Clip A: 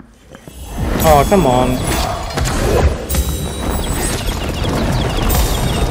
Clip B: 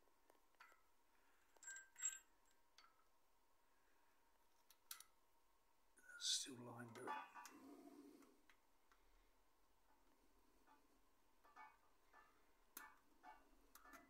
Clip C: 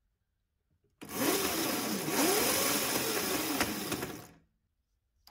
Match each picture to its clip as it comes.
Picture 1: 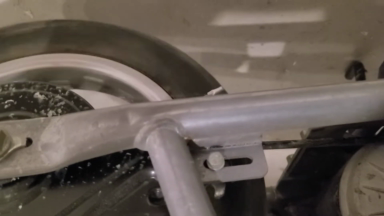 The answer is C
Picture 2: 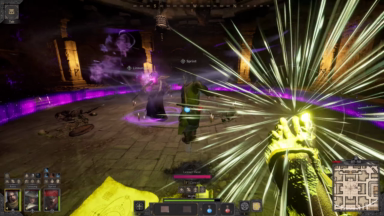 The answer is A